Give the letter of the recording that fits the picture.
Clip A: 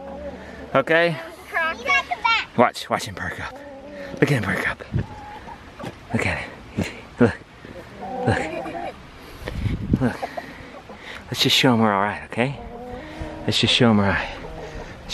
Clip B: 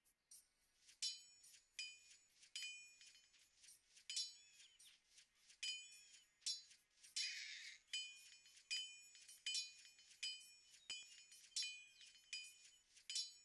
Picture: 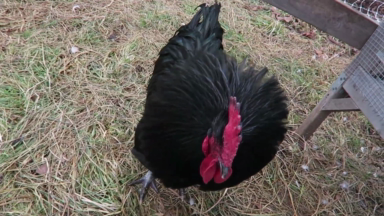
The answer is A